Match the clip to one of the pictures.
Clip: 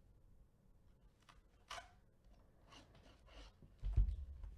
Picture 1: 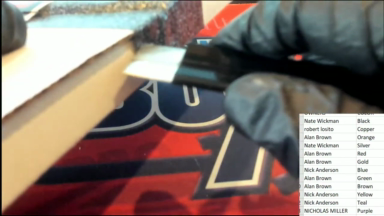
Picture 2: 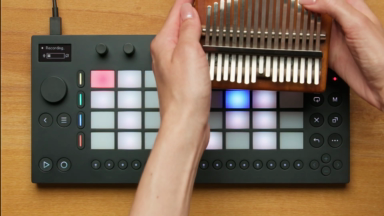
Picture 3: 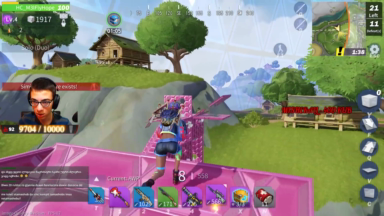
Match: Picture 1